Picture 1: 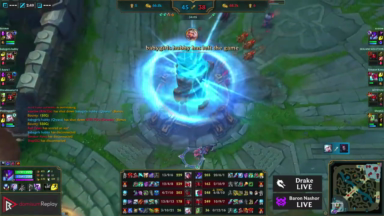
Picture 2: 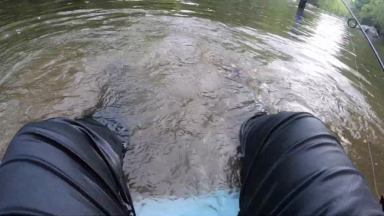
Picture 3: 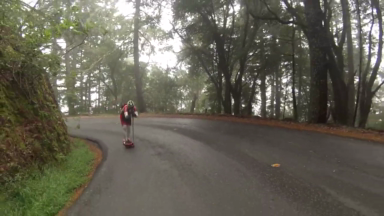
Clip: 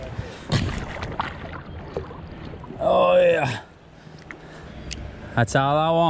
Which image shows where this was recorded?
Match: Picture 2